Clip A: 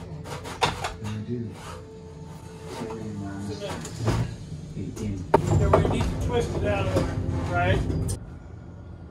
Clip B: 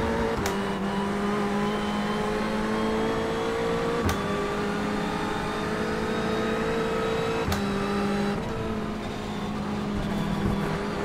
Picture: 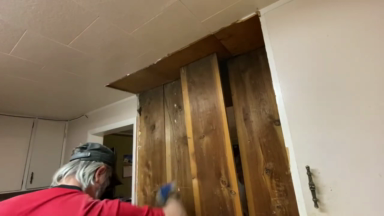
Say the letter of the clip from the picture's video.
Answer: A